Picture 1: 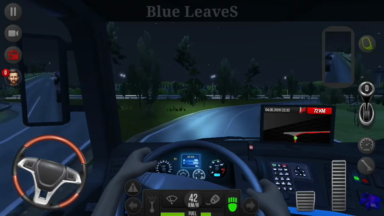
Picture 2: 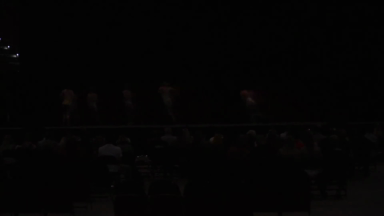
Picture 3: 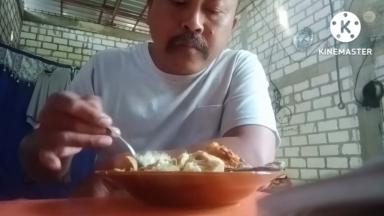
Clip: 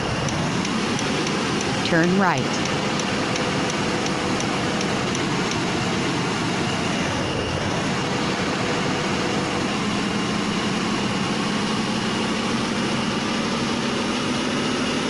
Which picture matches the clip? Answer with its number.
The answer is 1